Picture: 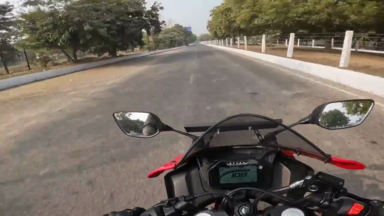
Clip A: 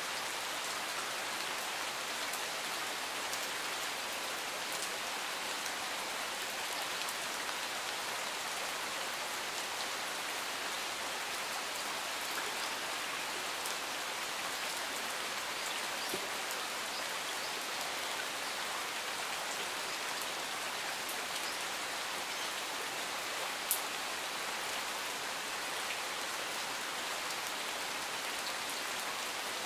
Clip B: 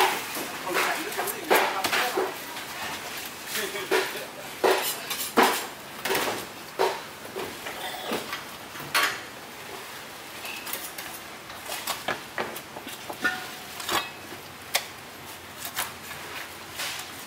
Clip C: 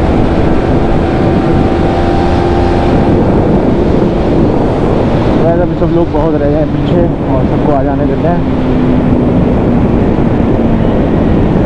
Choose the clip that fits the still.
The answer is C